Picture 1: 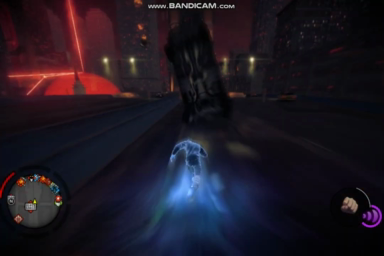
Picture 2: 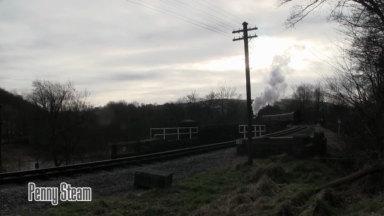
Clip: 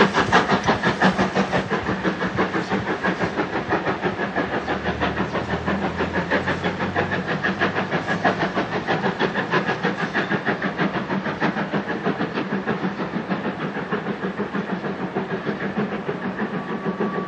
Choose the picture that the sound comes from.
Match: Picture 2